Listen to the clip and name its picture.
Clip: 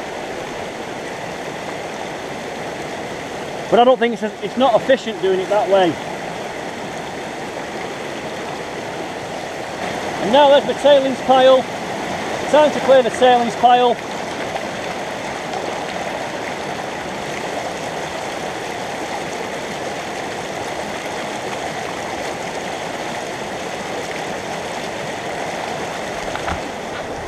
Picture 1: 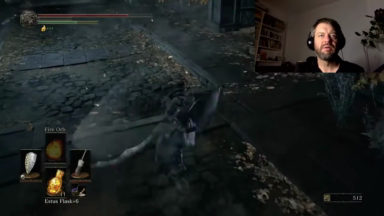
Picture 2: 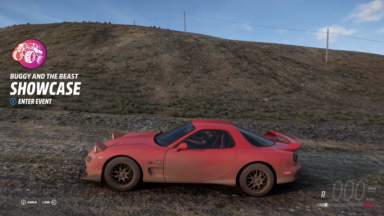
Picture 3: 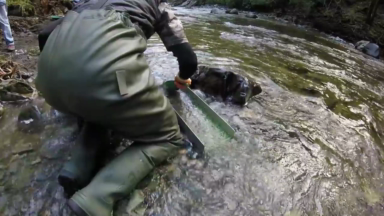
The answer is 3